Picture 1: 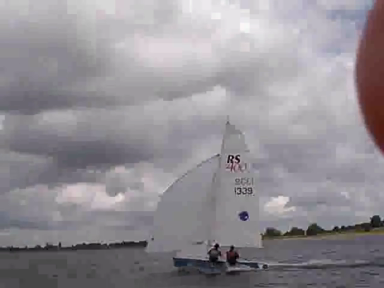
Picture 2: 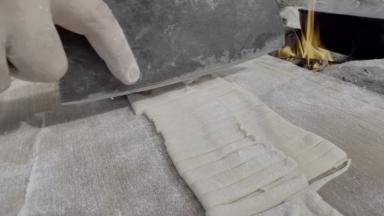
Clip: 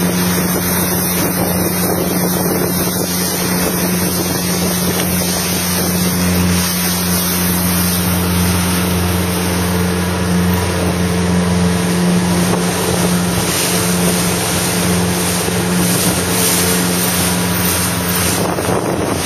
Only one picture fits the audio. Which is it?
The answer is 1